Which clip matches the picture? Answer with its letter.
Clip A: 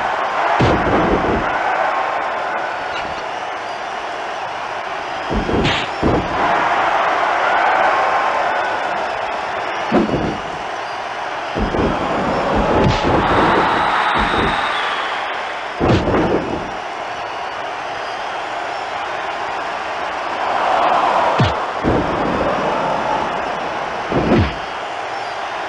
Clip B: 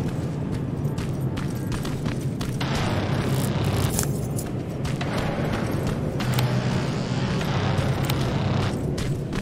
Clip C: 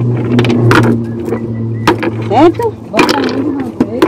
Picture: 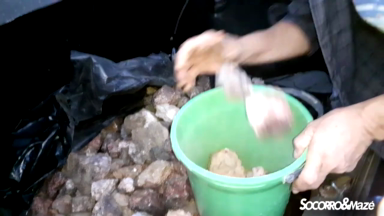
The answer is C